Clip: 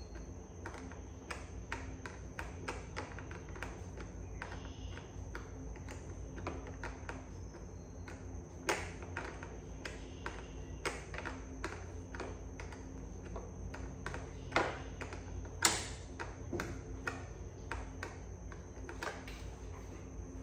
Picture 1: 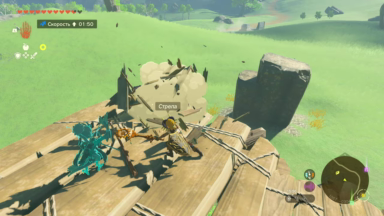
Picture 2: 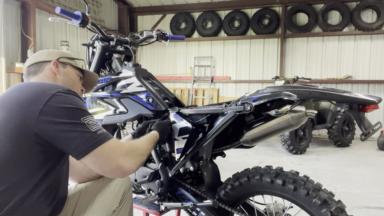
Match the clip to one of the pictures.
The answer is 2